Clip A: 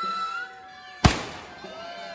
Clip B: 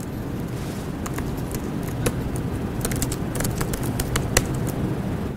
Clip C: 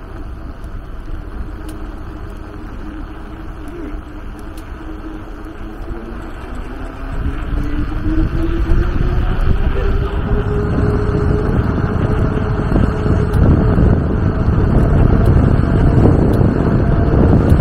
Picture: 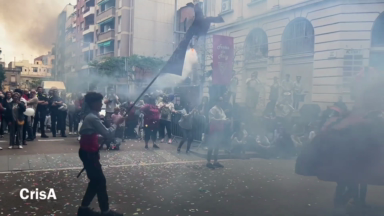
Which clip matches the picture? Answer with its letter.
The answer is A